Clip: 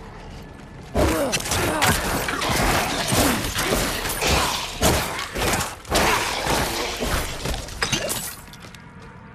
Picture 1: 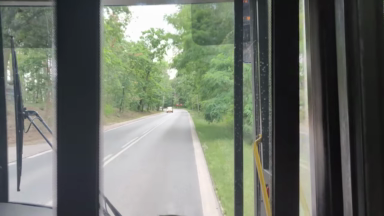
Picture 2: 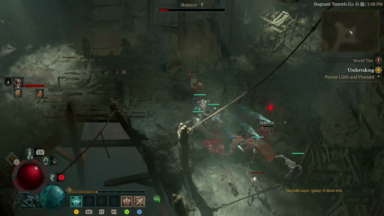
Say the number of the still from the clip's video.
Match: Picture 2